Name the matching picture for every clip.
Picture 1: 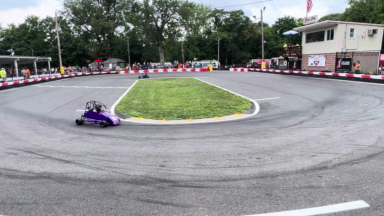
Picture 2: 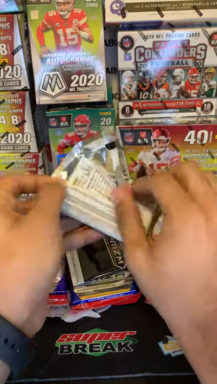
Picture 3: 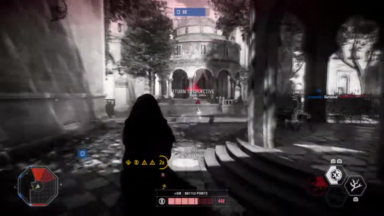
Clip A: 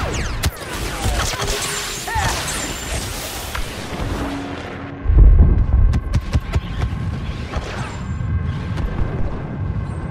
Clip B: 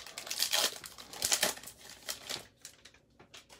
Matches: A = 3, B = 2